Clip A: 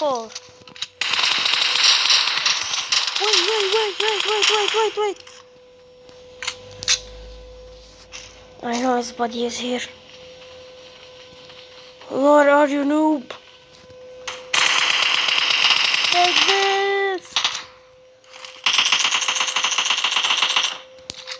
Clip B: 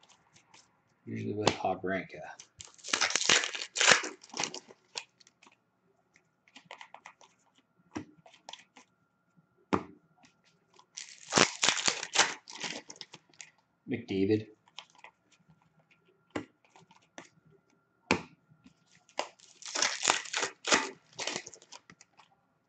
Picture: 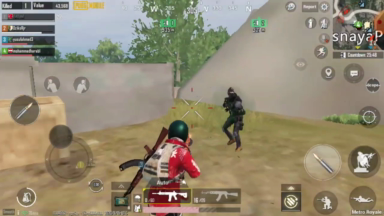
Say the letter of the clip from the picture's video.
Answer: A